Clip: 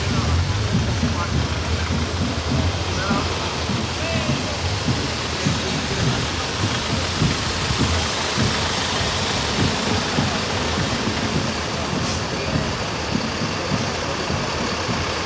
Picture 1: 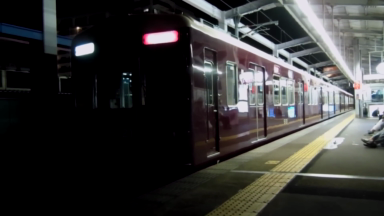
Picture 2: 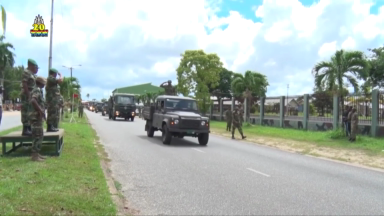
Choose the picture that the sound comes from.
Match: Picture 2